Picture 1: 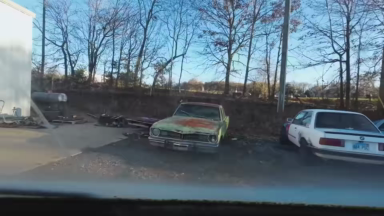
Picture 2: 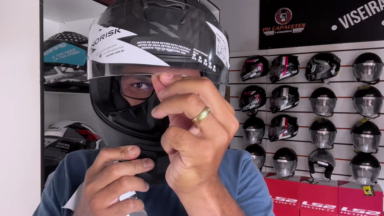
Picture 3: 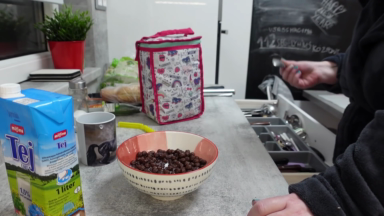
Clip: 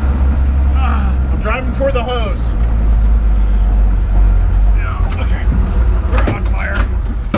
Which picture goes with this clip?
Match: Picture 1